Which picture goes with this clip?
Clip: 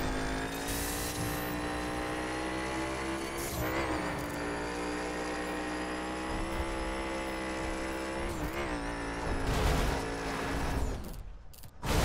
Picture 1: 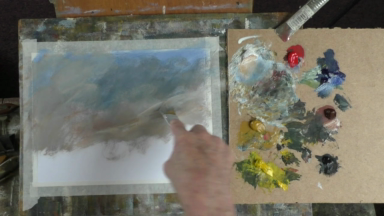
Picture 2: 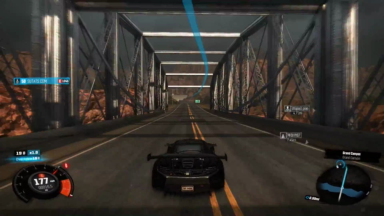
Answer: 2